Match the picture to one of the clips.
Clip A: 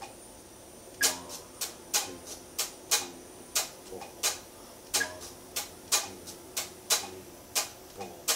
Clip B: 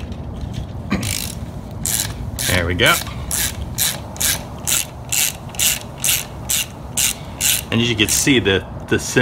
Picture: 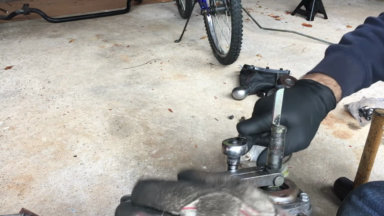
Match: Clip B